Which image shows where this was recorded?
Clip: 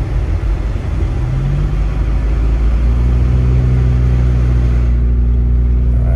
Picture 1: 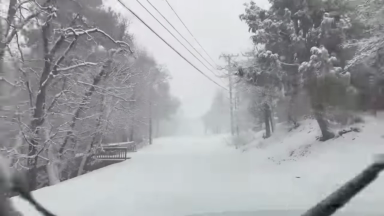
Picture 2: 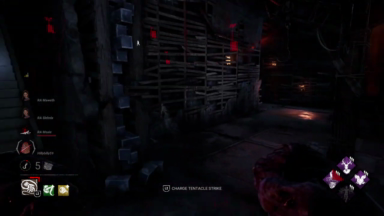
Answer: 1